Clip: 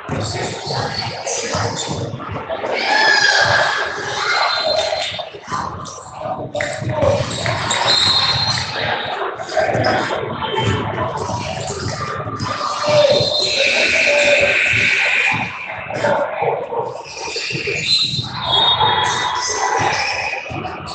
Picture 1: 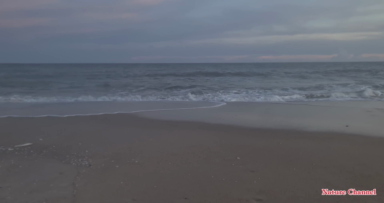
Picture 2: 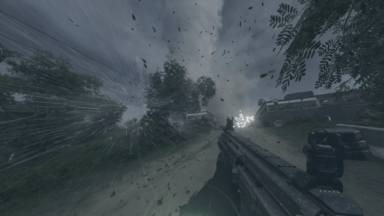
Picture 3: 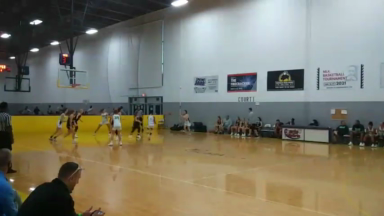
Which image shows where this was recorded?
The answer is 3